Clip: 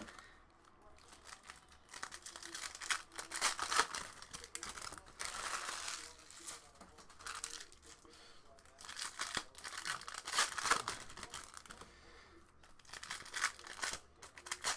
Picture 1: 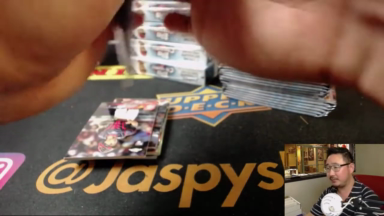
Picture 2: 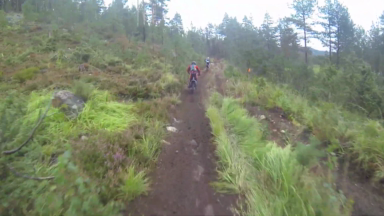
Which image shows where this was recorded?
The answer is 1